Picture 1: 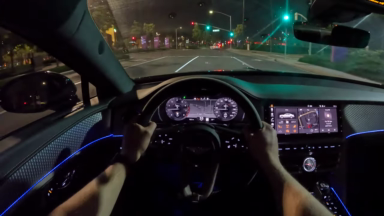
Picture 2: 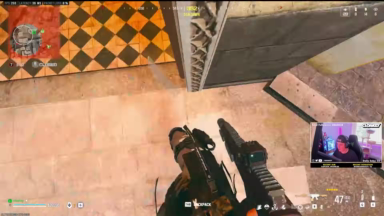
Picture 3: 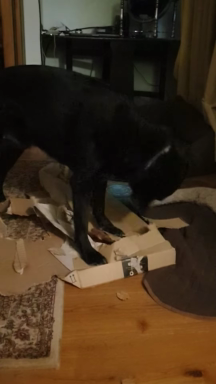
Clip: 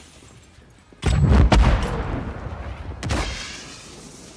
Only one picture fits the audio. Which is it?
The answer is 2